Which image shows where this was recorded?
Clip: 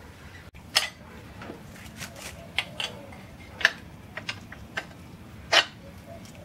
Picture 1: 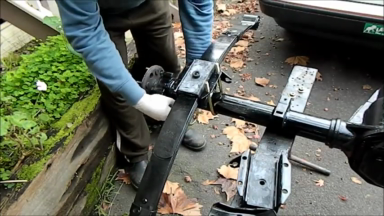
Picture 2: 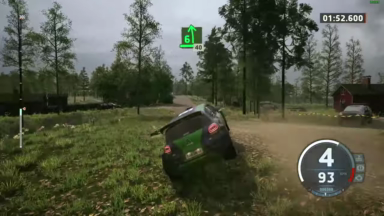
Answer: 1